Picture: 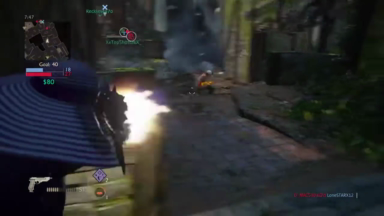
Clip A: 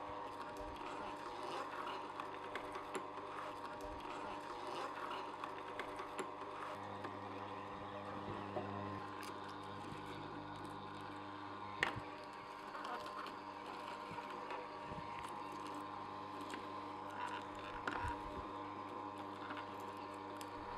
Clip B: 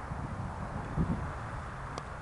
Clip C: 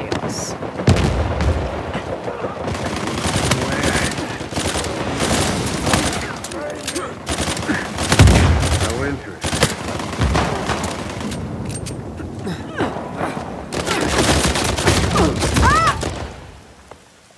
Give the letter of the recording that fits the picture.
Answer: C